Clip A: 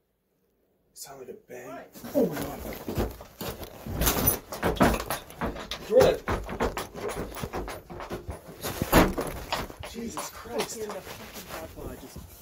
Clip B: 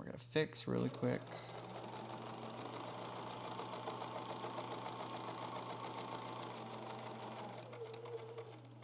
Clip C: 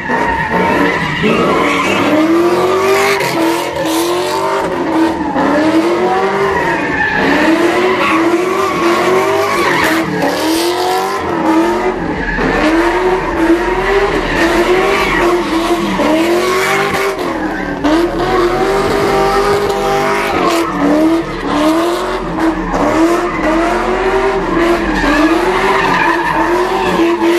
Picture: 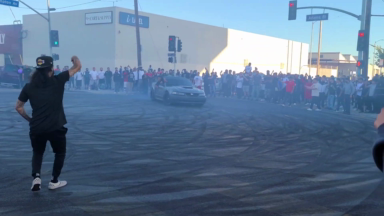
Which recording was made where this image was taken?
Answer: C